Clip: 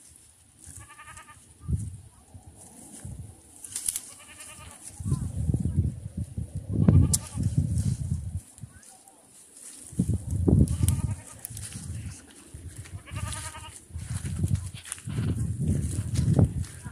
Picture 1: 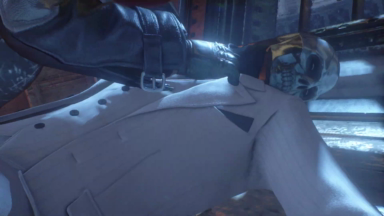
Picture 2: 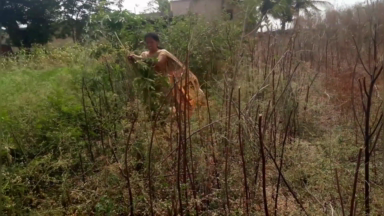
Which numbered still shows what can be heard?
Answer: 2